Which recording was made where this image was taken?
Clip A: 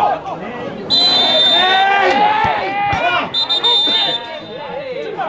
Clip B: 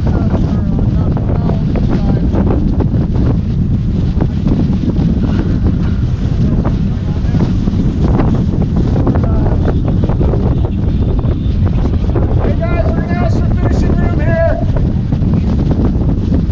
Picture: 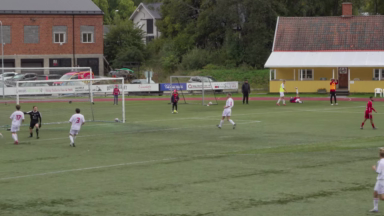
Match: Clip A